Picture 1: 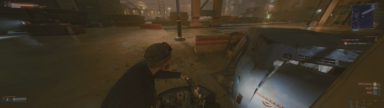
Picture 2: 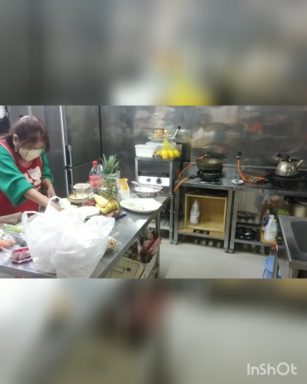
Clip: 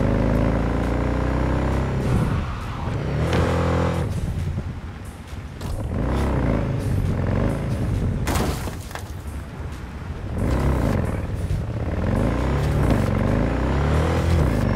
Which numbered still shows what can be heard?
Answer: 1